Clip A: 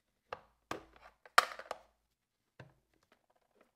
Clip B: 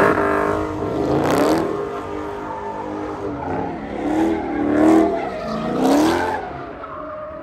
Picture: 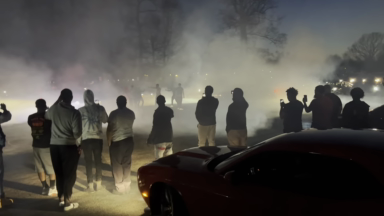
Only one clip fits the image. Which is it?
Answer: B